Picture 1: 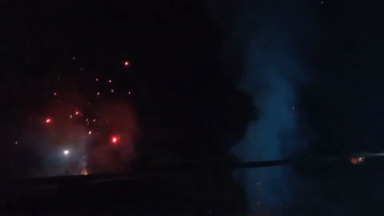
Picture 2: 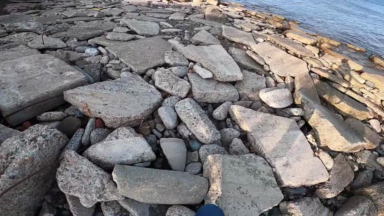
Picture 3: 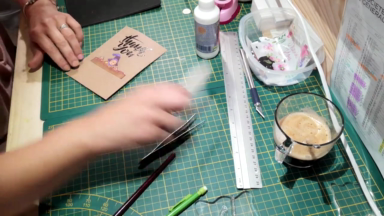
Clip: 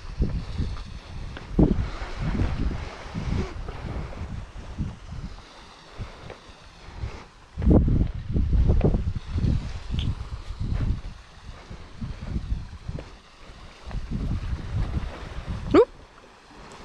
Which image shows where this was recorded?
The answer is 2